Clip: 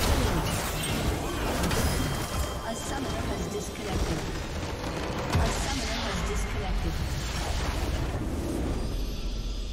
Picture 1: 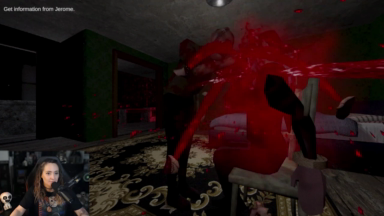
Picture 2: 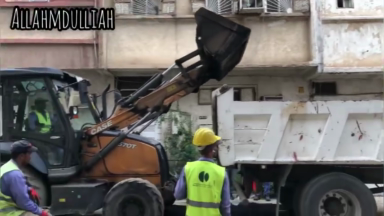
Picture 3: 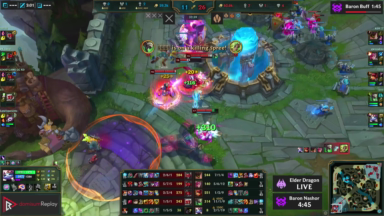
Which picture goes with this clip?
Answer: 3